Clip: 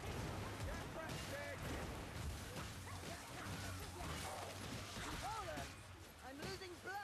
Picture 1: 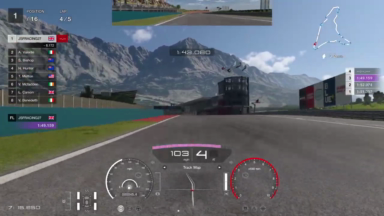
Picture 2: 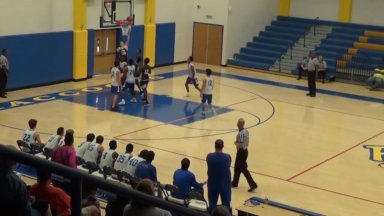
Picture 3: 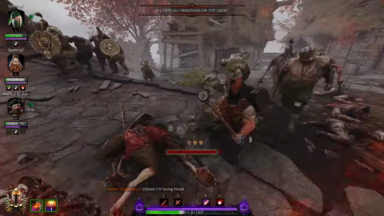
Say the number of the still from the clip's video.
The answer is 3